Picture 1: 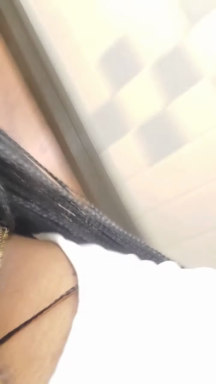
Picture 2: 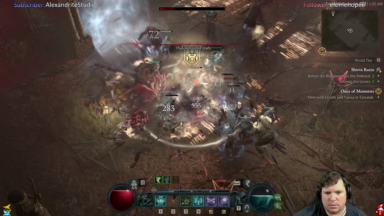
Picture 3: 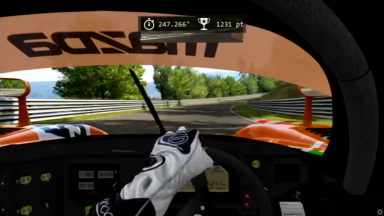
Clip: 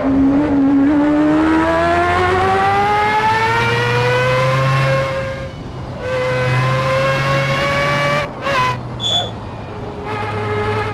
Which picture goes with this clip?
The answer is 3